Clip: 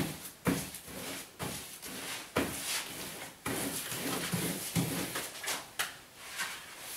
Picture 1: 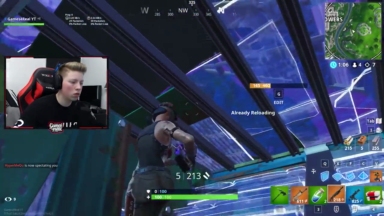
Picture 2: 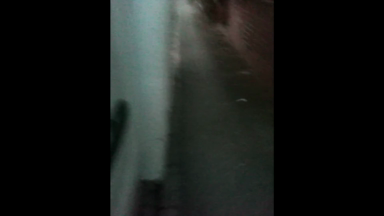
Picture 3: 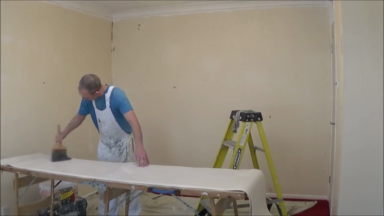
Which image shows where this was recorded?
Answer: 3